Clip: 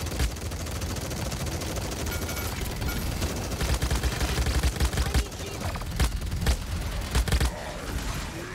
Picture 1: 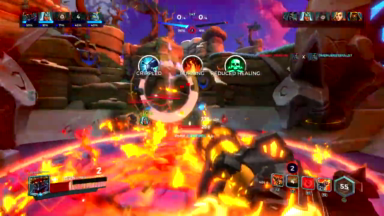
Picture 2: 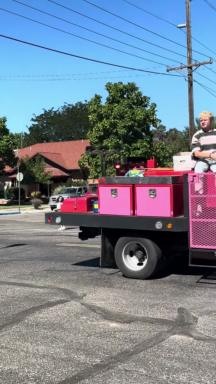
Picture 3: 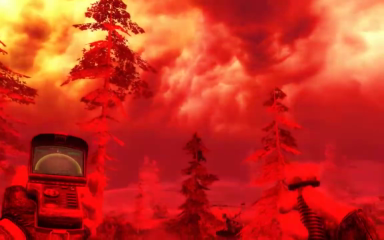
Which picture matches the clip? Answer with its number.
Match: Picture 1